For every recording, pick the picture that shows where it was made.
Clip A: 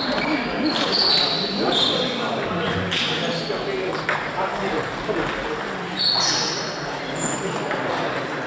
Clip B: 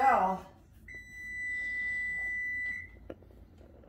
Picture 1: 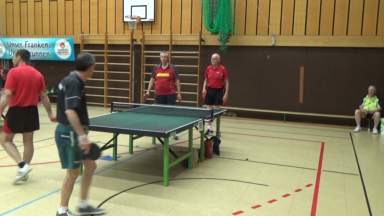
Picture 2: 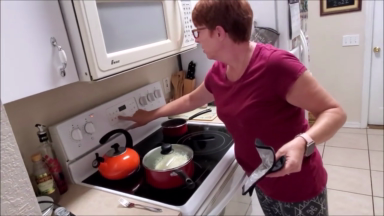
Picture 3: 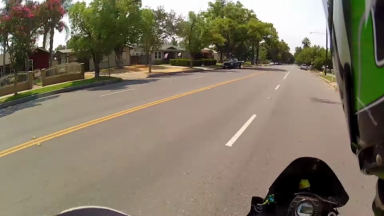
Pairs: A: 1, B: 2